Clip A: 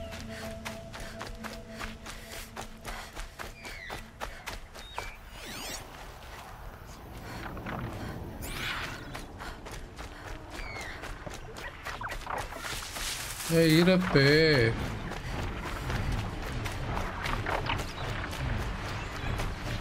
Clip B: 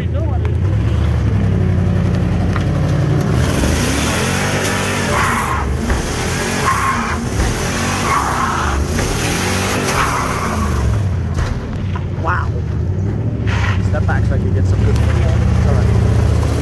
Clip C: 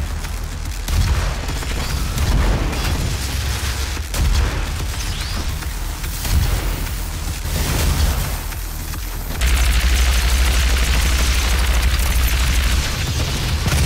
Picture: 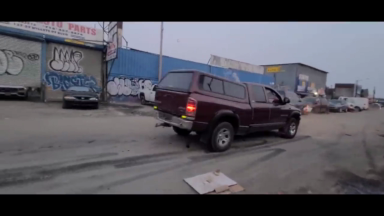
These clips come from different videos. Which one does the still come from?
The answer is B